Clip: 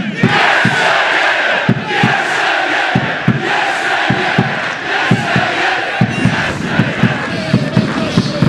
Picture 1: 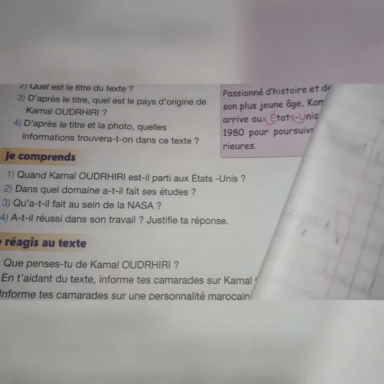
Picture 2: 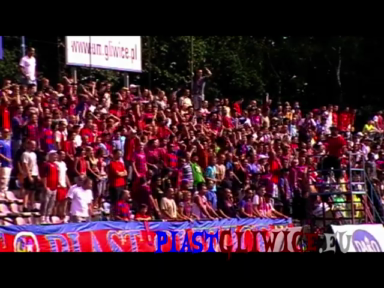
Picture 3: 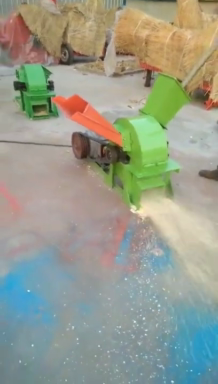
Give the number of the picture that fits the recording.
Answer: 2